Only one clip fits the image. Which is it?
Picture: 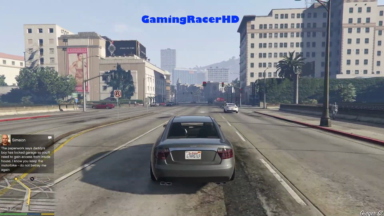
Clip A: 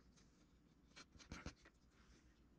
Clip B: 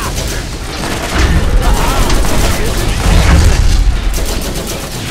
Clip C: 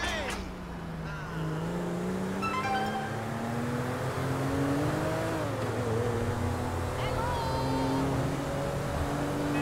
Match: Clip C